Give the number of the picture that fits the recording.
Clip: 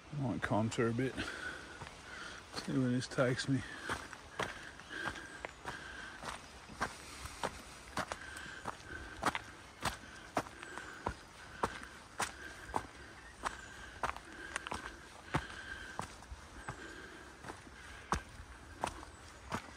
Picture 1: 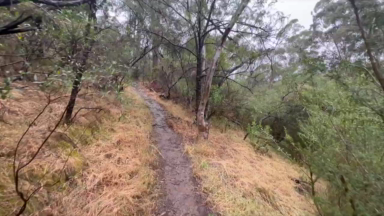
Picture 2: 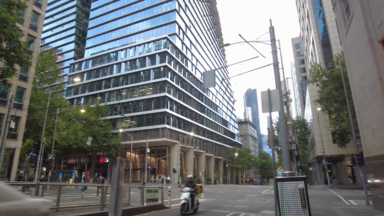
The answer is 1